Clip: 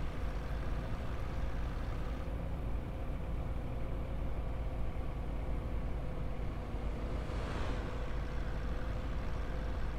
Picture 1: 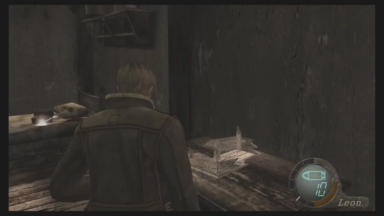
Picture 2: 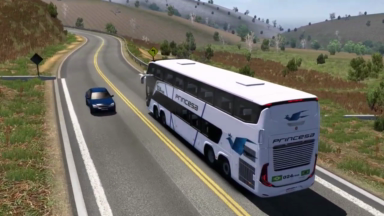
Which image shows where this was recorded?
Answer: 2